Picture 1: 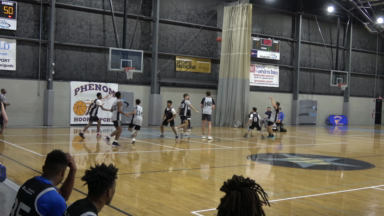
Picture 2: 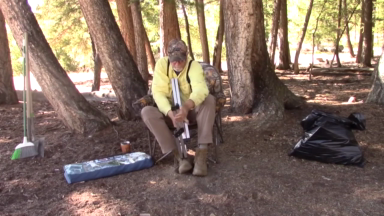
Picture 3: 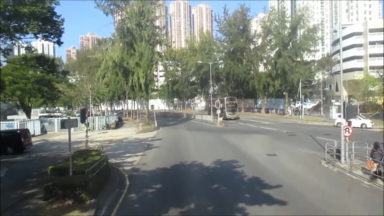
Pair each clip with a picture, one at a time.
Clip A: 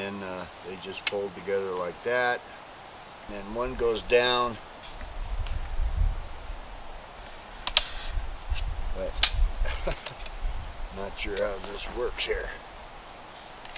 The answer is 2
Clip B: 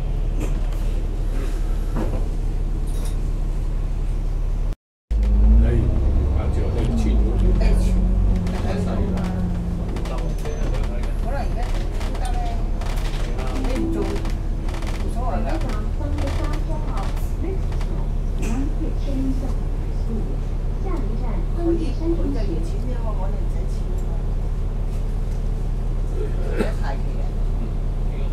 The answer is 3